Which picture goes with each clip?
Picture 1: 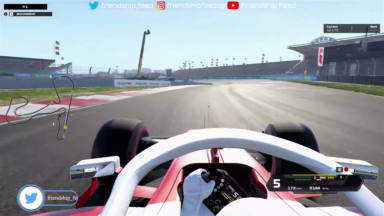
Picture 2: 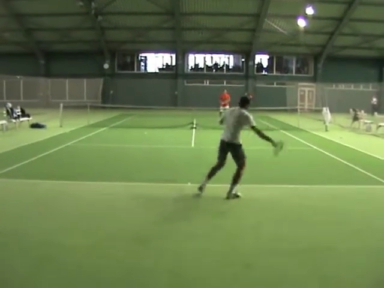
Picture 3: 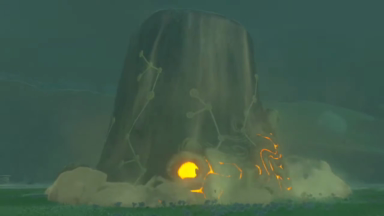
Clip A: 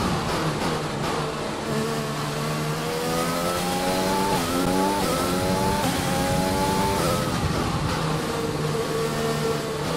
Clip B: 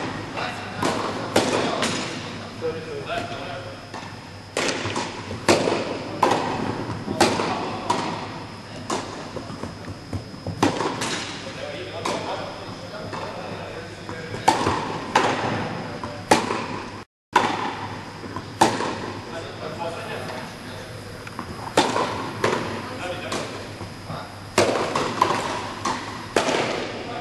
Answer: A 1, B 2